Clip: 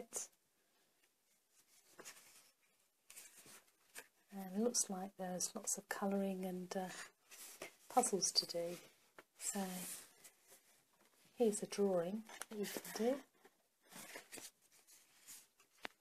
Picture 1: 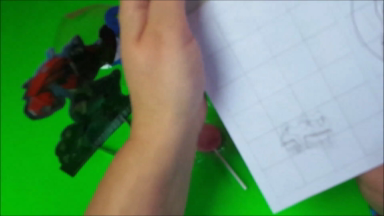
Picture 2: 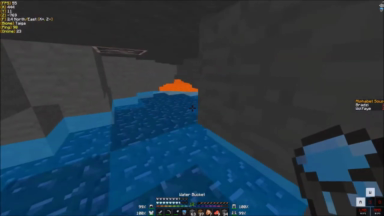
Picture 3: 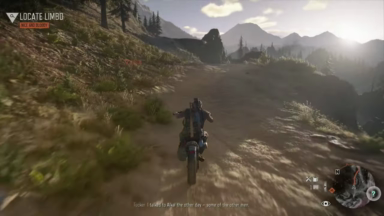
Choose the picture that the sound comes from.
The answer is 1